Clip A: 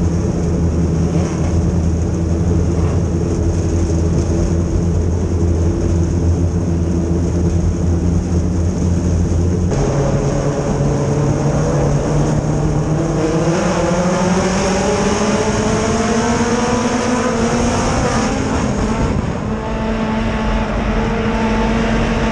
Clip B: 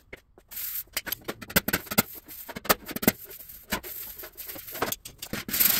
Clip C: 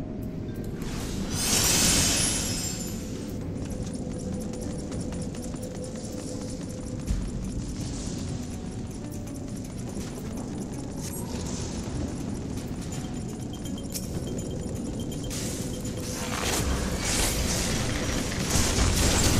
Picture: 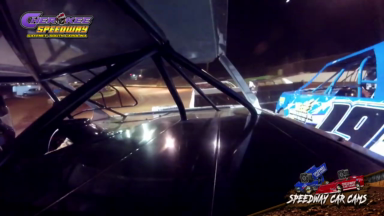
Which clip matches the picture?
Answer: A